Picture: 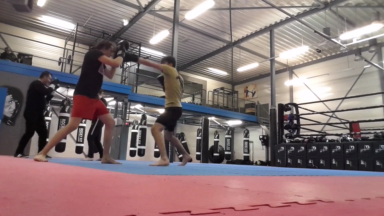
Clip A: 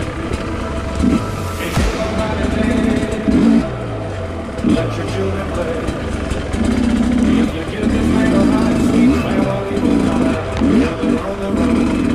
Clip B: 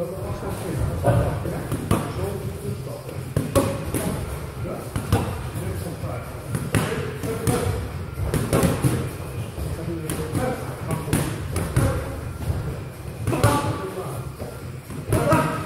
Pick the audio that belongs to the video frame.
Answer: B